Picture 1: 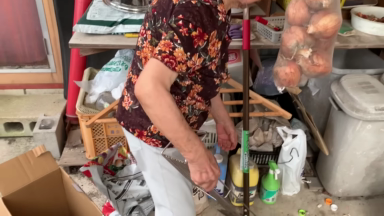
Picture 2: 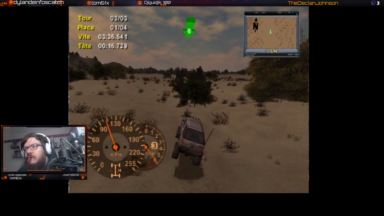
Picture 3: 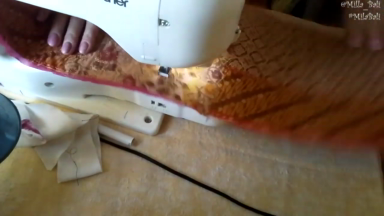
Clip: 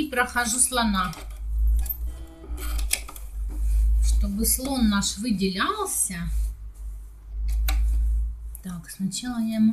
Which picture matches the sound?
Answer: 3